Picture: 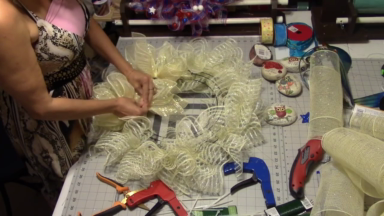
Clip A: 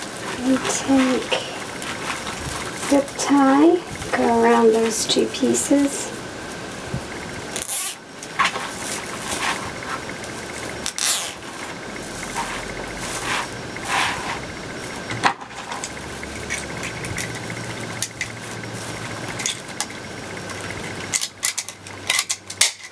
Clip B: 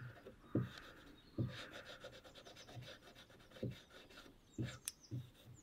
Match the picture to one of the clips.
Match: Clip A